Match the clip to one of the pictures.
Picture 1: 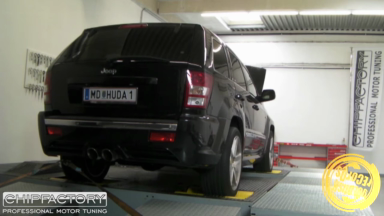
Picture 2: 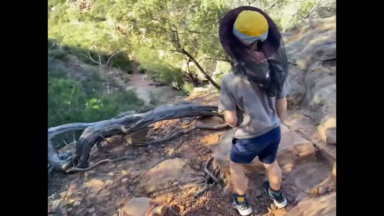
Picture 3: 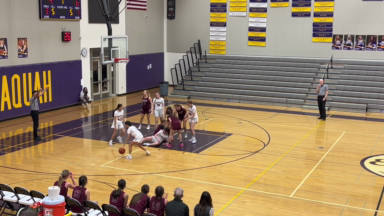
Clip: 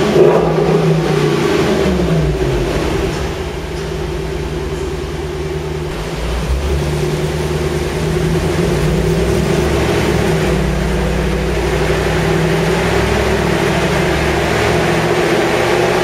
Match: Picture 1